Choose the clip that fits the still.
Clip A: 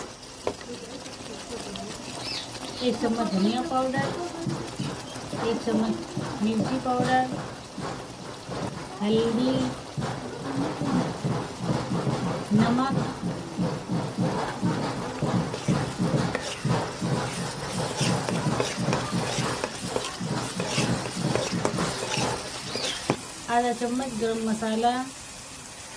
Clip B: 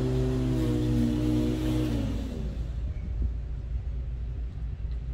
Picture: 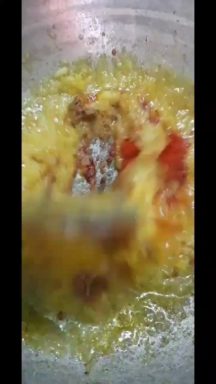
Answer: A